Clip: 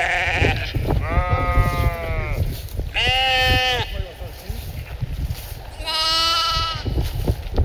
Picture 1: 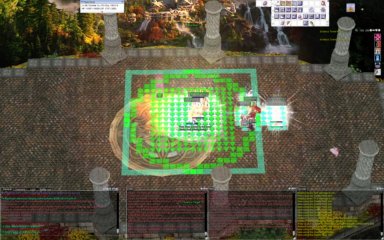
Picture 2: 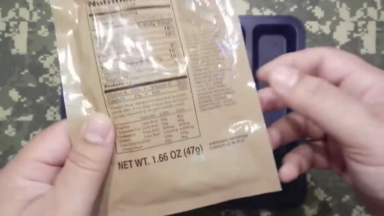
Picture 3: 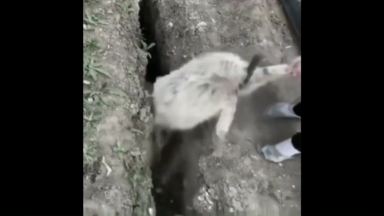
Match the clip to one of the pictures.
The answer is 3